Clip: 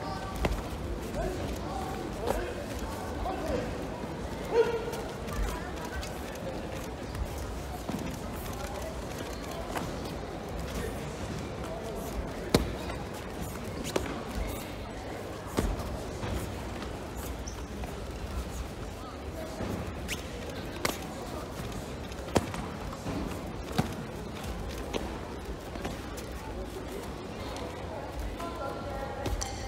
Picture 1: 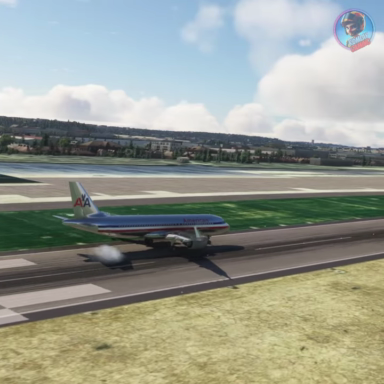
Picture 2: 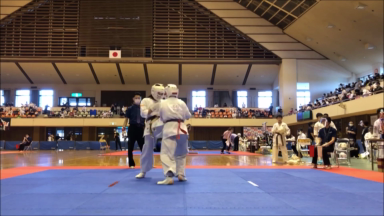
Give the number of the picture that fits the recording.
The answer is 2